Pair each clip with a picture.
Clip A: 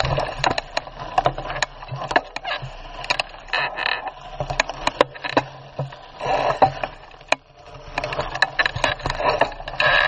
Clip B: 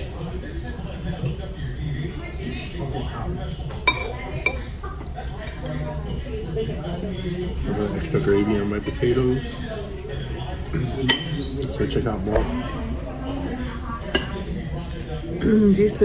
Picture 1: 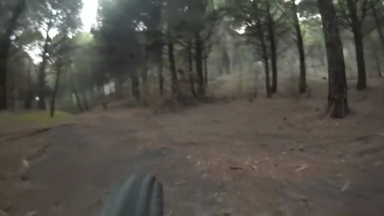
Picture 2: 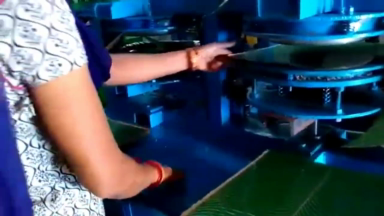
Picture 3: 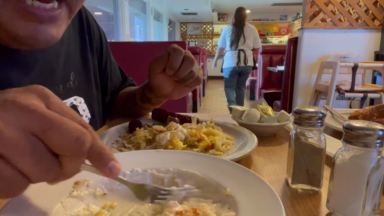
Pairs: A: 1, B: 3